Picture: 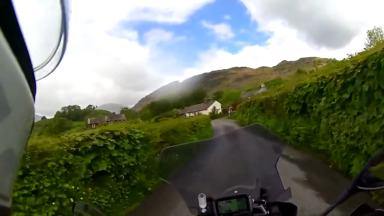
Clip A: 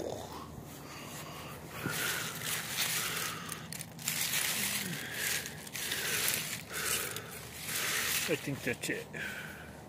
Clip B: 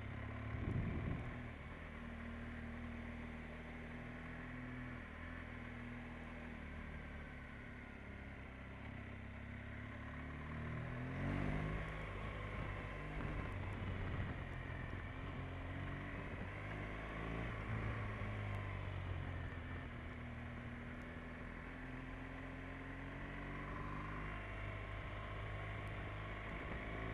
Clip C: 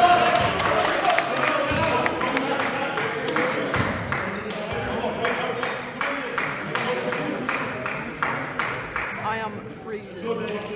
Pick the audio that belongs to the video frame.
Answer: B